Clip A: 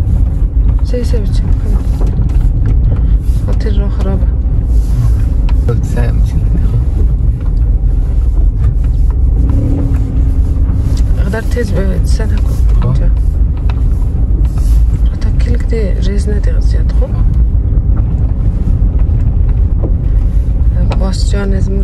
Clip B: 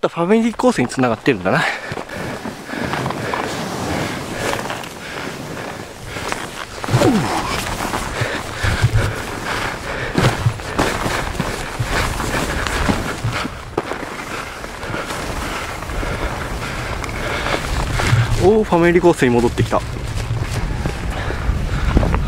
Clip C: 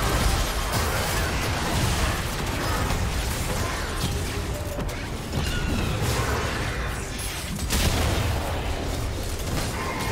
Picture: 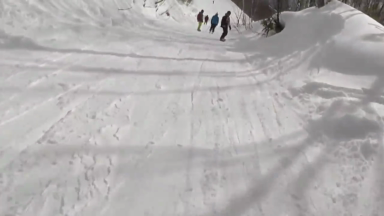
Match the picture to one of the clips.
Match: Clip B